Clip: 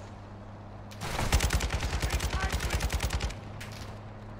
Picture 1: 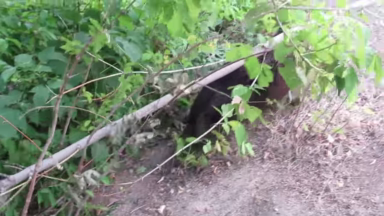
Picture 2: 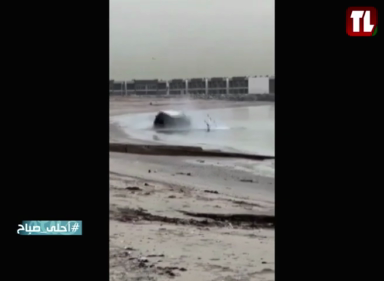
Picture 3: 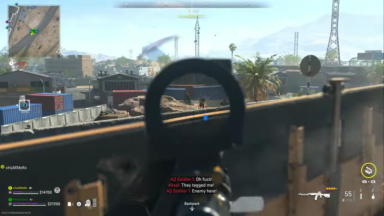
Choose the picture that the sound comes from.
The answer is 3